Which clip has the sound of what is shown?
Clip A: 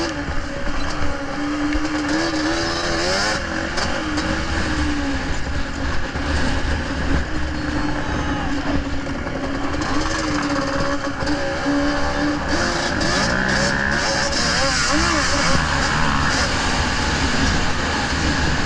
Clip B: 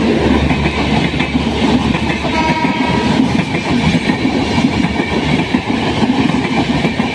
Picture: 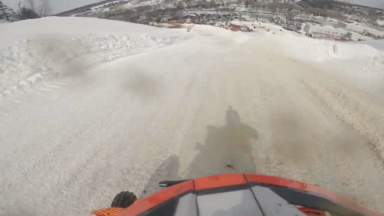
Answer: A